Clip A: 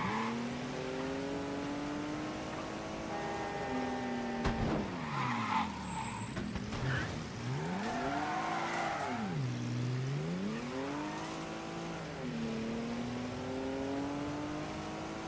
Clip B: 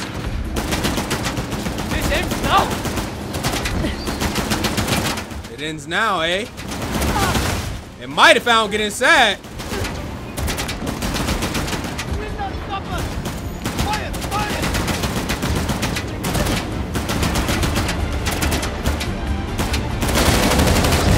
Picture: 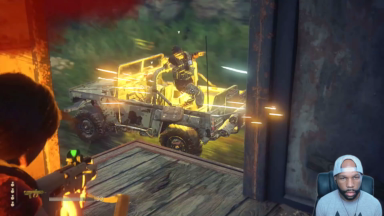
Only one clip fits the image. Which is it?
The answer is B